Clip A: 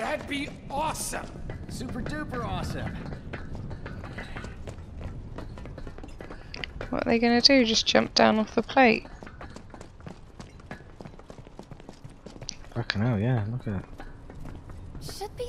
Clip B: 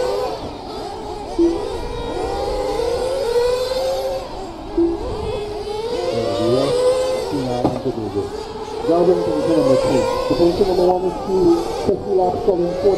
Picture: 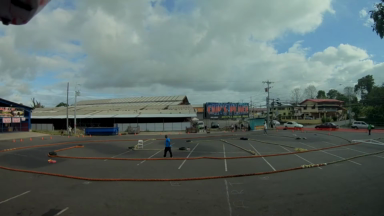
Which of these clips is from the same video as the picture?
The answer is B